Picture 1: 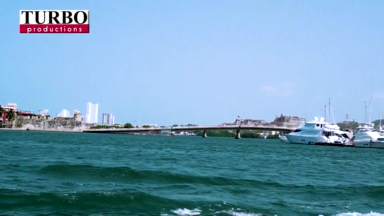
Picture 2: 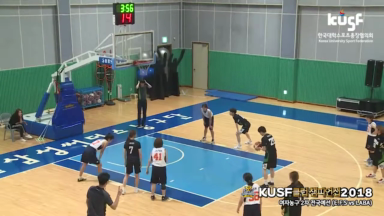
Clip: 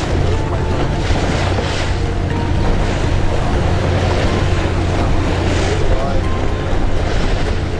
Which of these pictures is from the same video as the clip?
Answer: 1